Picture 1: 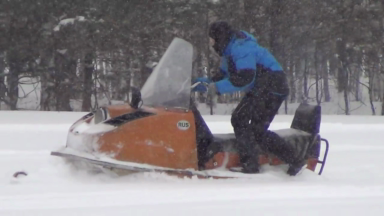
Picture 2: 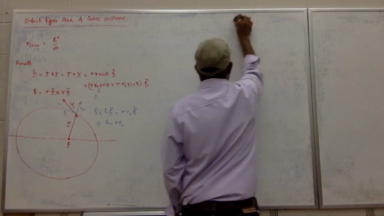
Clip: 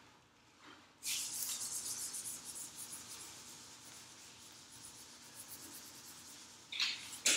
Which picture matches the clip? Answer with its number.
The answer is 2